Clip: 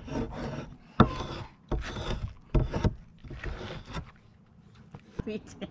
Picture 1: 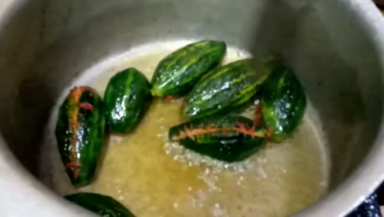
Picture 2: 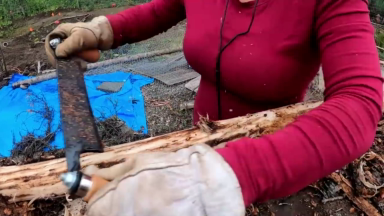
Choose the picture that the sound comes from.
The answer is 2